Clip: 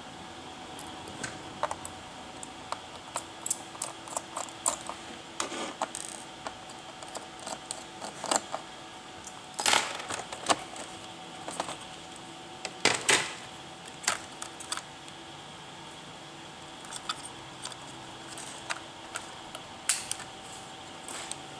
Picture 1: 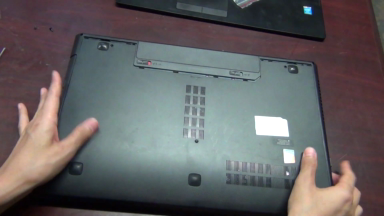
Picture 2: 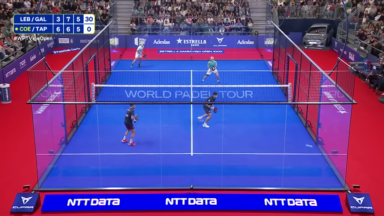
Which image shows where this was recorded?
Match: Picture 1